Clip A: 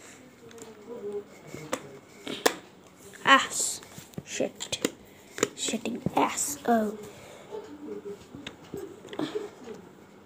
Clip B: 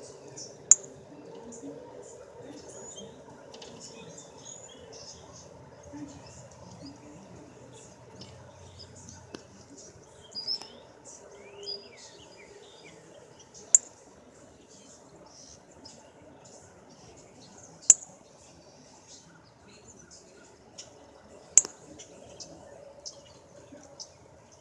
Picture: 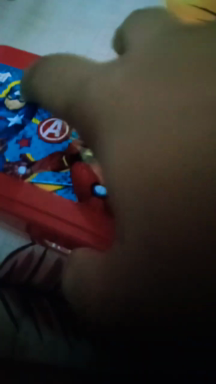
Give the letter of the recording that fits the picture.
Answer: A